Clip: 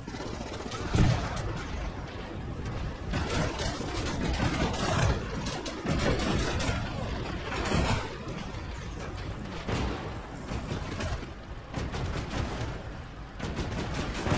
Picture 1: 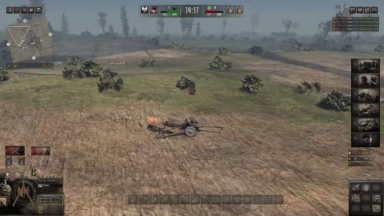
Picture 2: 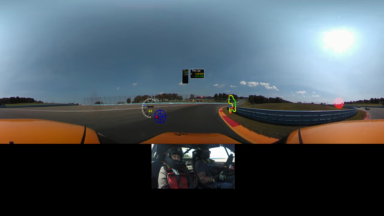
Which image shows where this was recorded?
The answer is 1